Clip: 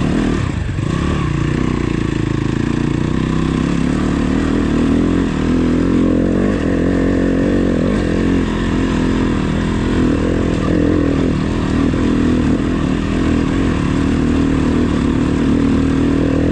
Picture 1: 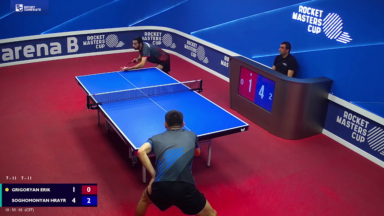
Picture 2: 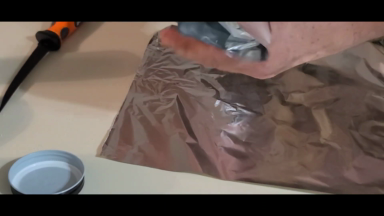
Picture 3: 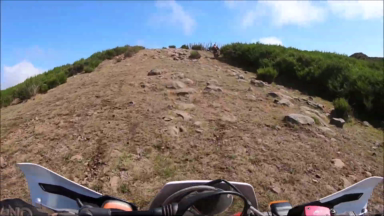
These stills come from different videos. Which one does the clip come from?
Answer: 3